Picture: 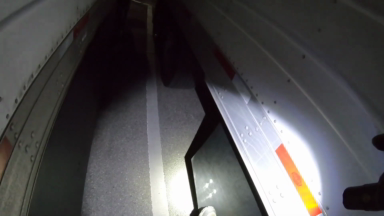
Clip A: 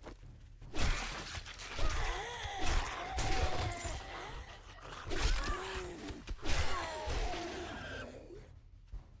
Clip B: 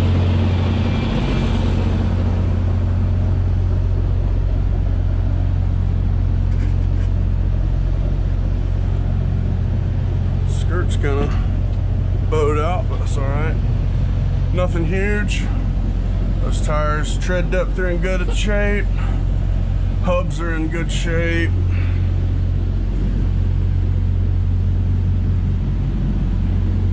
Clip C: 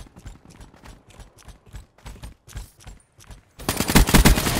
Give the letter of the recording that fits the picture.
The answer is B